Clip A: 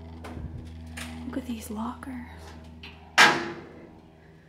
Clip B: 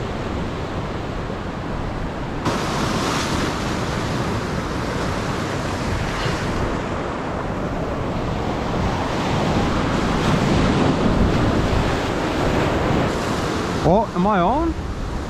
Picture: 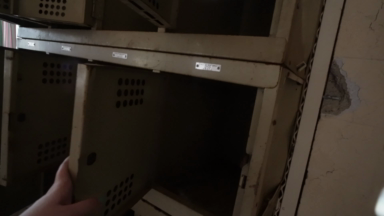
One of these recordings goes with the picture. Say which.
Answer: A